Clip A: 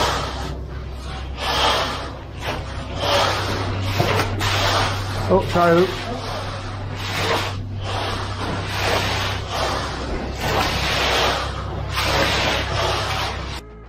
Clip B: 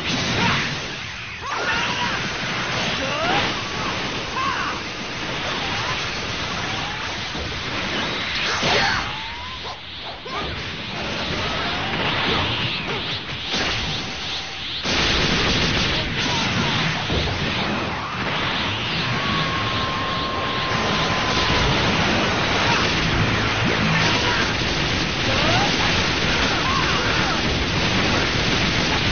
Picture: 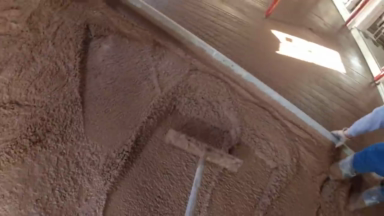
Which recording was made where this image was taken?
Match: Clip A